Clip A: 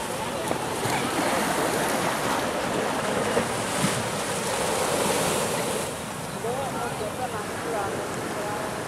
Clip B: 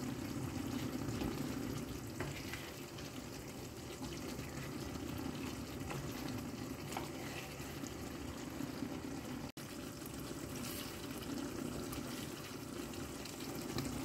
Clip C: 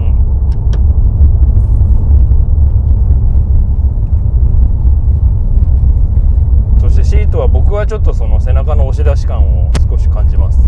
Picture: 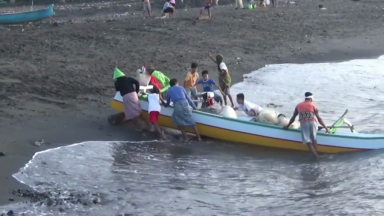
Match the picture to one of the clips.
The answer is A